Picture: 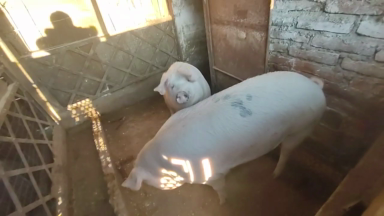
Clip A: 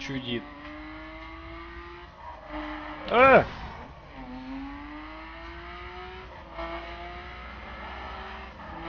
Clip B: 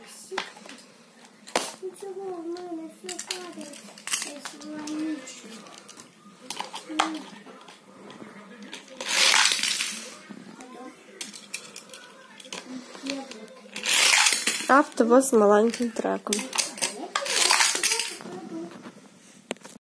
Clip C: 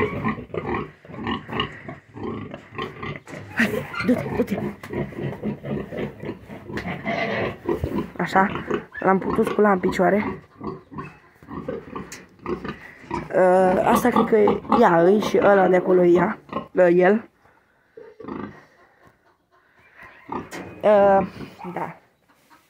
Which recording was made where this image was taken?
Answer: C